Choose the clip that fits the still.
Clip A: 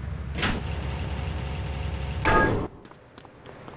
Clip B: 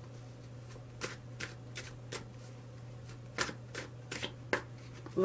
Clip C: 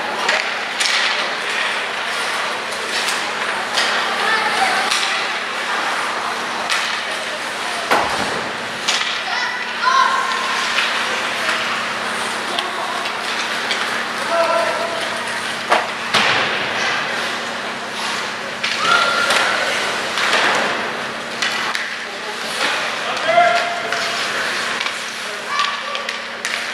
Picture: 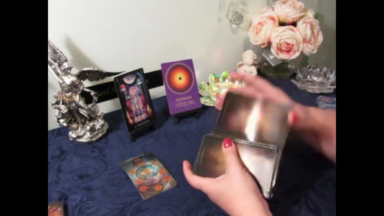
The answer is B